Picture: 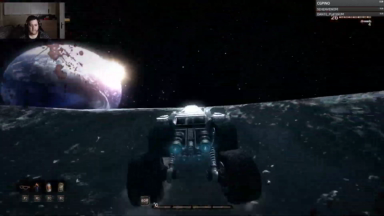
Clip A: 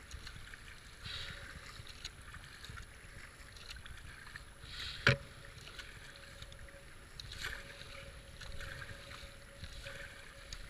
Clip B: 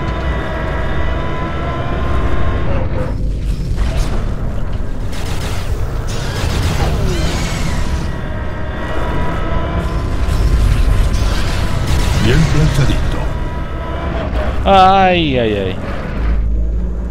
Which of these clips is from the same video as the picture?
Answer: B